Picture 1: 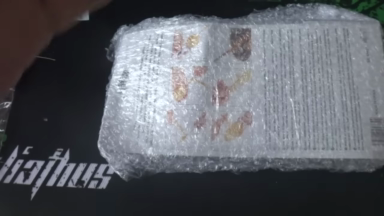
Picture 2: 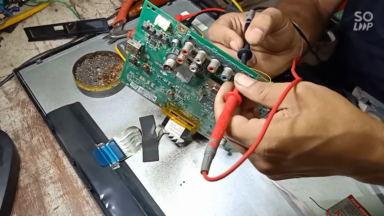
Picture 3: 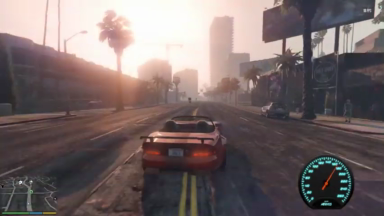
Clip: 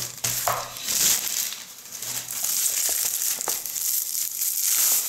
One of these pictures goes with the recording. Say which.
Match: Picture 1